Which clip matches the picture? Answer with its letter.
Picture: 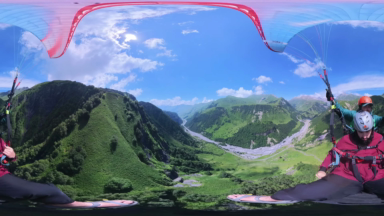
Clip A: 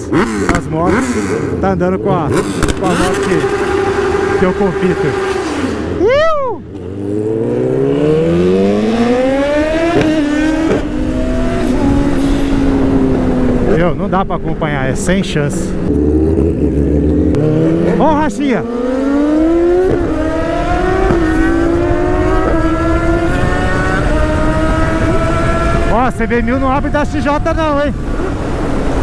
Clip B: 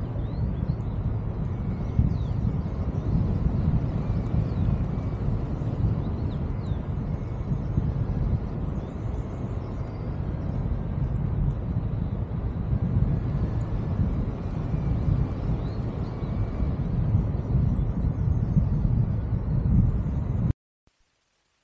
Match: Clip B